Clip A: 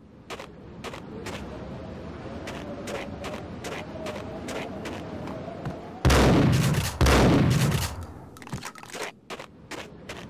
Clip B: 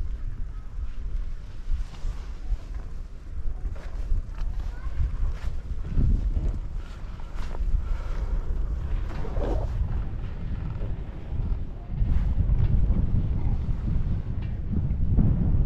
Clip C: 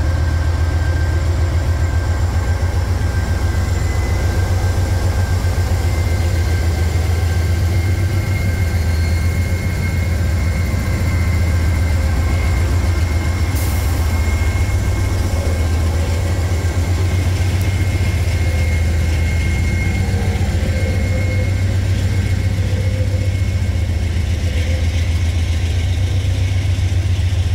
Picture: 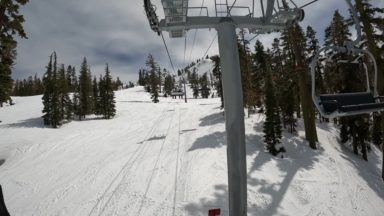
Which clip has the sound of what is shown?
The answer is B